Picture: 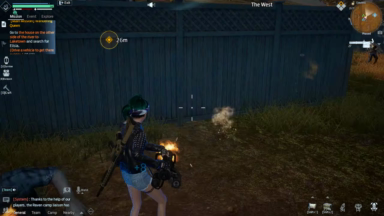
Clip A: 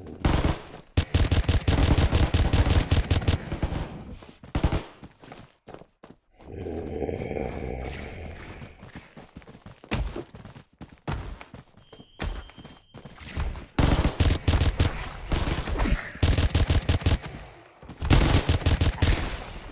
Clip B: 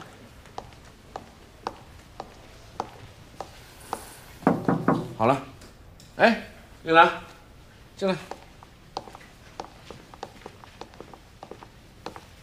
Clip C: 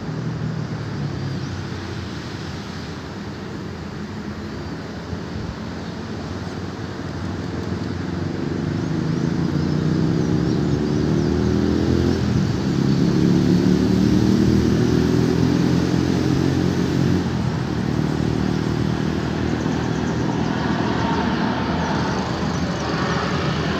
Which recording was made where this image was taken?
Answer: A